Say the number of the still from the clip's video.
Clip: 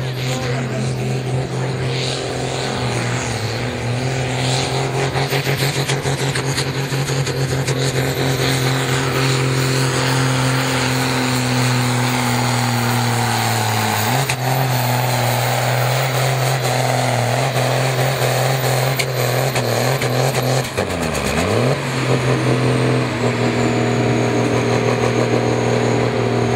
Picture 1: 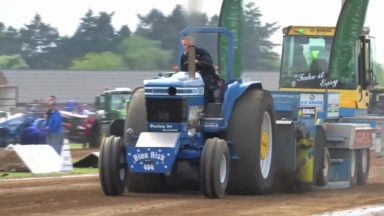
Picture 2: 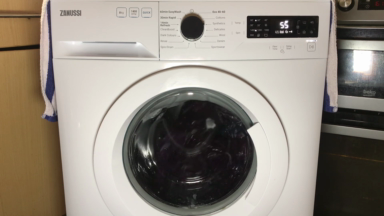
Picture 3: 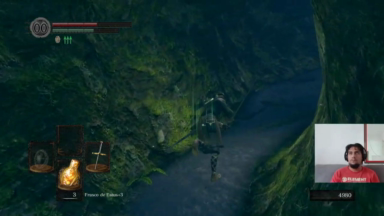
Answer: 1